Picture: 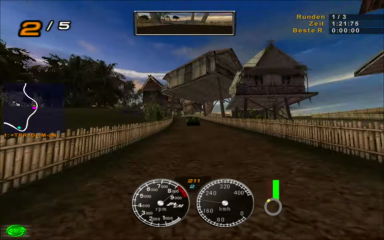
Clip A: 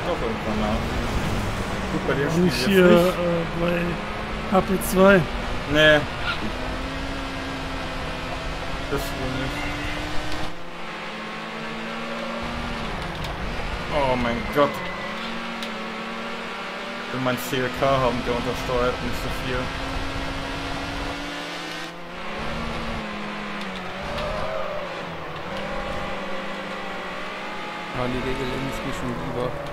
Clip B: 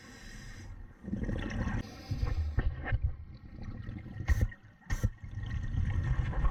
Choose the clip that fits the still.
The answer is A